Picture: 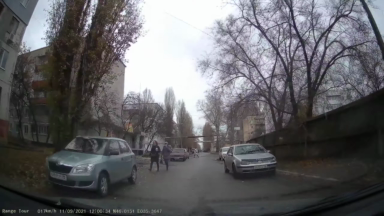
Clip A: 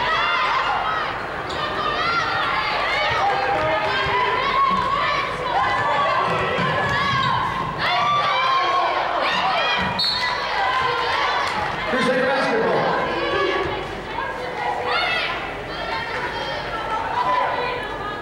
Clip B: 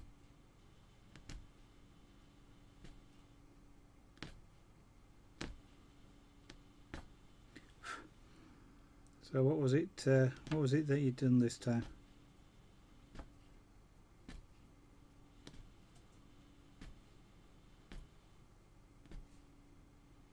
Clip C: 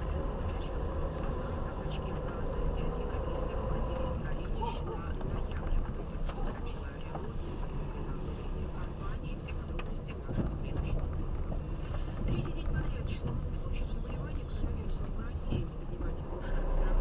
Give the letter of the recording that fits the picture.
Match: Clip C